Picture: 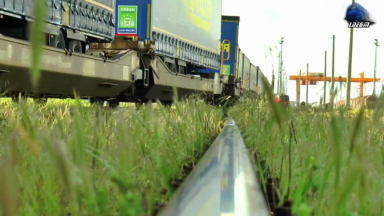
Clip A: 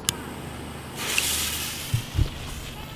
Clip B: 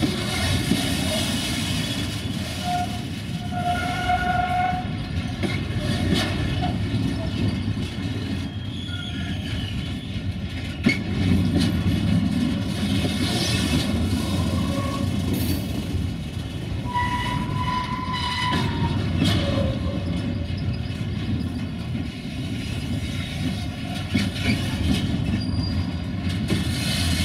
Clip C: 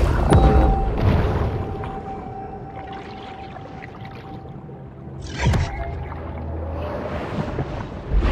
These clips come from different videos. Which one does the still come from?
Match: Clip B